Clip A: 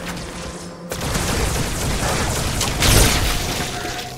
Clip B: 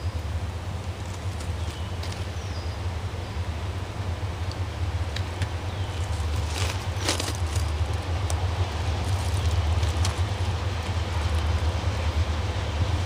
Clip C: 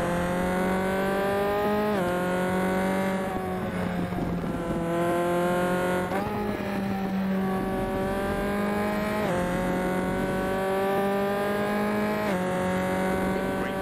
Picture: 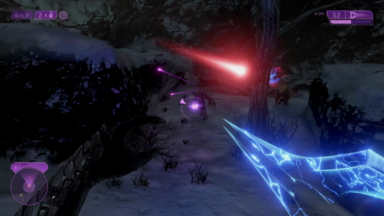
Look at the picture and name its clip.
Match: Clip A